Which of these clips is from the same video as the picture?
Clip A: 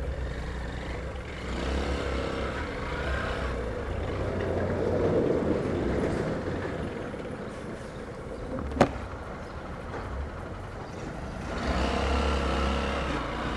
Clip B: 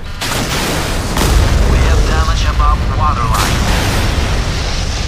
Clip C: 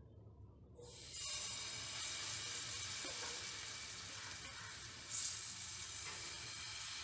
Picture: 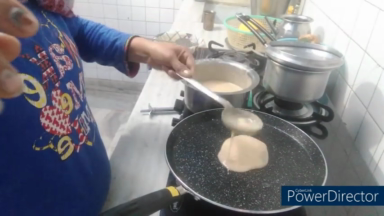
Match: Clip C